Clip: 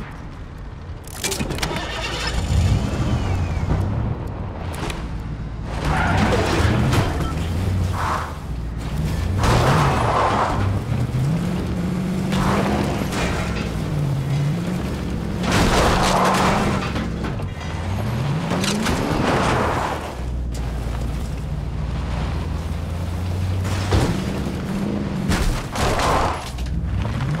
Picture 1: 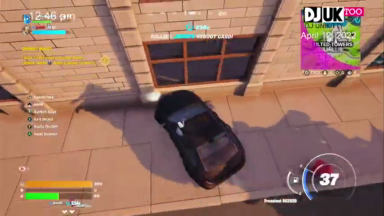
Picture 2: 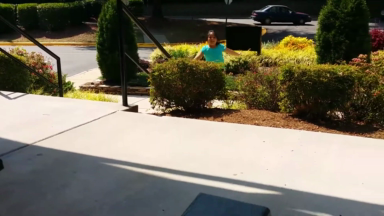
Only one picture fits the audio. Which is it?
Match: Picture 1